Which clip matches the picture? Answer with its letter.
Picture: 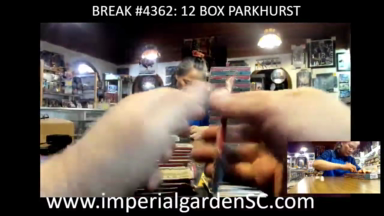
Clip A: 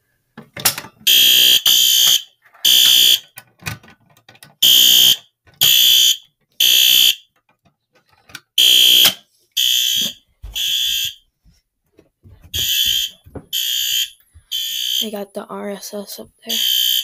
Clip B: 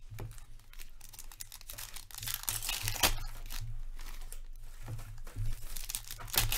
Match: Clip B